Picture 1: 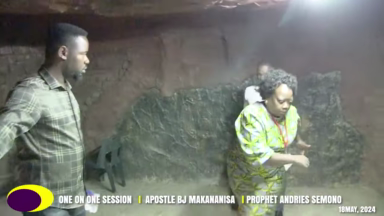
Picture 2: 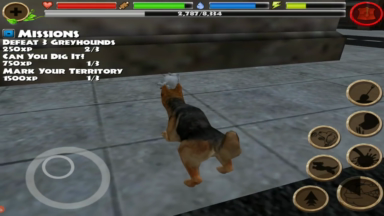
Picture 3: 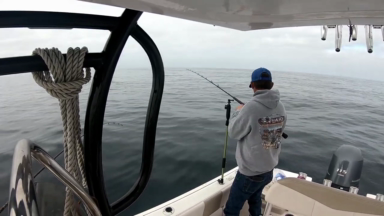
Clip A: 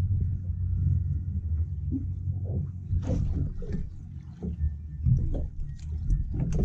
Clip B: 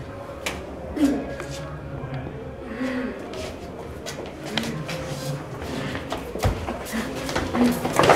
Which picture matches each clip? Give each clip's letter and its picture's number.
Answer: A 3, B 1